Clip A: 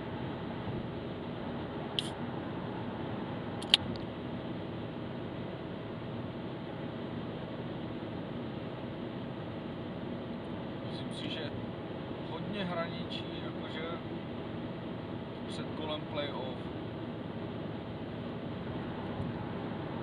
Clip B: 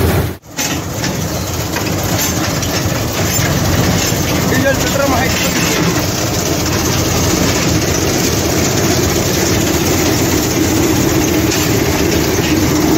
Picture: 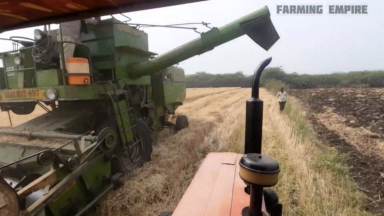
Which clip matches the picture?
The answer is B